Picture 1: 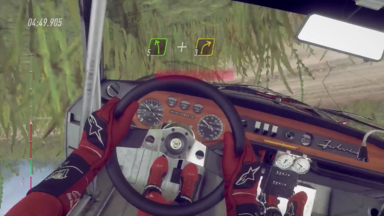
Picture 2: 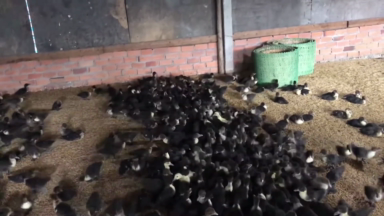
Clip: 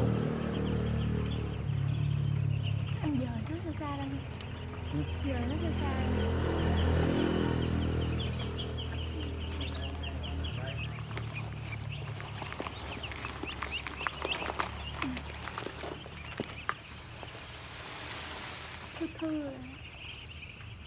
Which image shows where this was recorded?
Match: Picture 2